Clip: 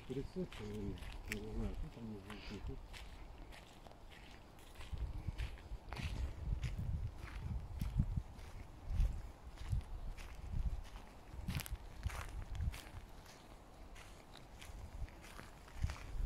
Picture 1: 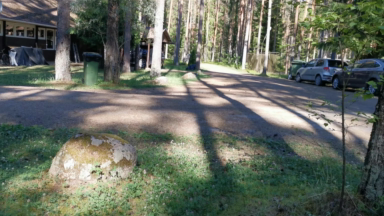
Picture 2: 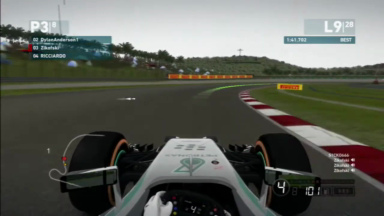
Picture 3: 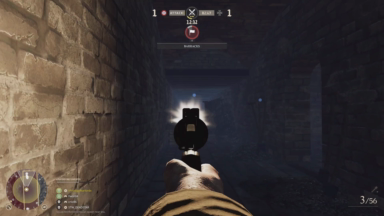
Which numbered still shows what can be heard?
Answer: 1